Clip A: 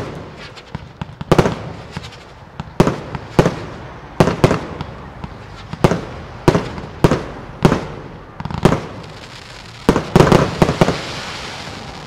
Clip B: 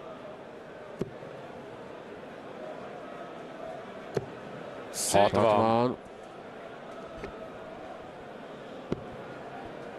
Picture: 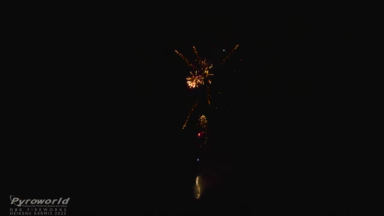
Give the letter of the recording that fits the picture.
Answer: A